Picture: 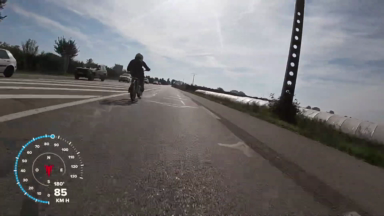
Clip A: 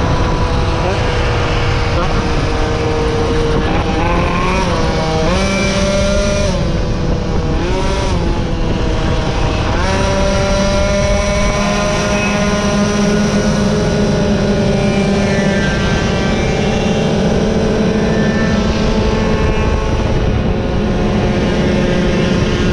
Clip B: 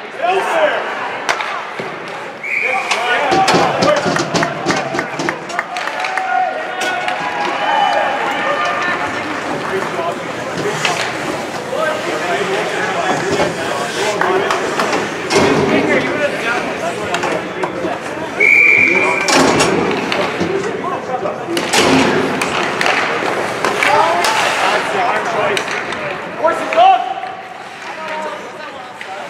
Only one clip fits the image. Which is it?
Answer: A